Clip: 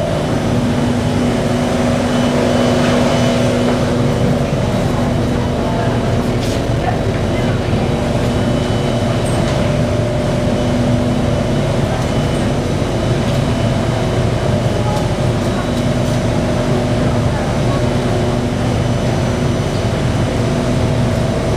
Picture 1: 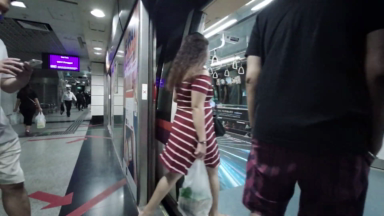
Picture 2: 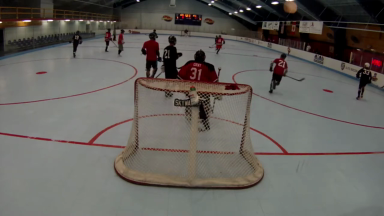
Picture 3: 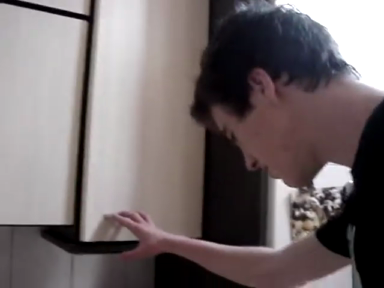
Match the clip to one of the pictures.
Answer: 1